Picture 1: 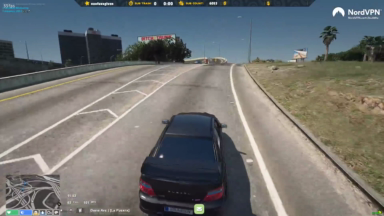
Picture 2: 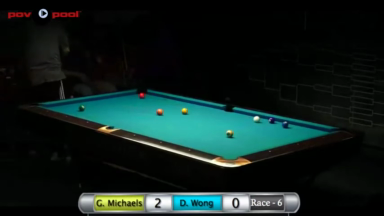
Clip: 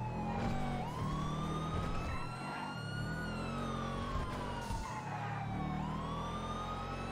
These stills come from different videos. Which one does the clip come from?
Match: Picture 1